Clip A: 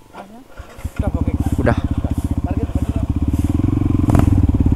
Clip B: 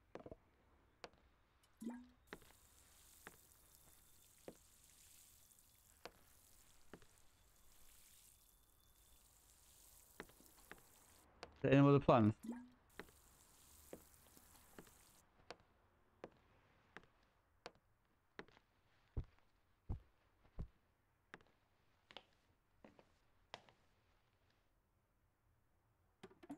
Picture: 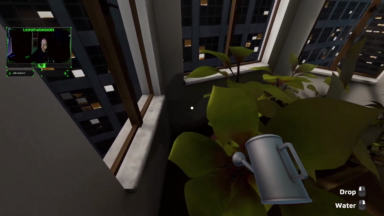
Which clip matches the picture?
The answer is B